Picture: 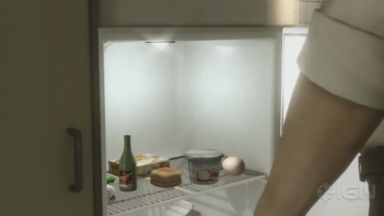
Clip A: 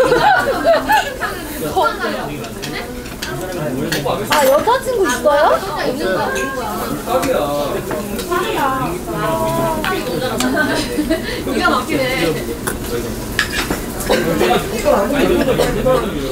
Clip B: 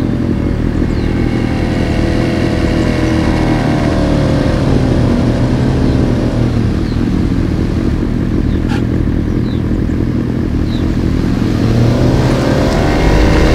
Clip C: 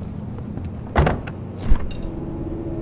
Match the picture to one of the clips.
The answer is C